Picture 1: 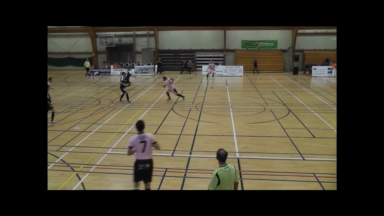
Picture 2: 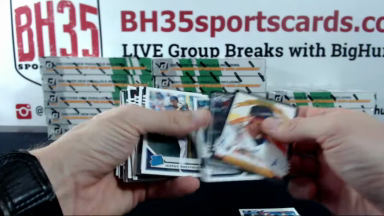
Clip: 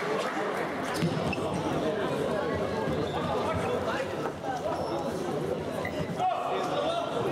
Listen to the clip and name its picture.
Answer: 1